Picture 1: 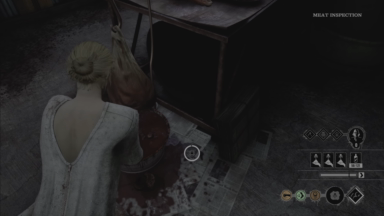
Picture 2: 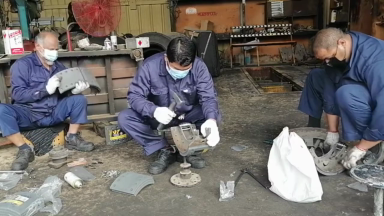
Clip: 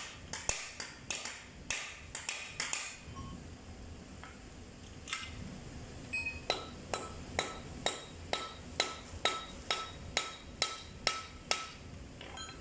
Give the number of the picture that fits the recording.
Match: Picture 2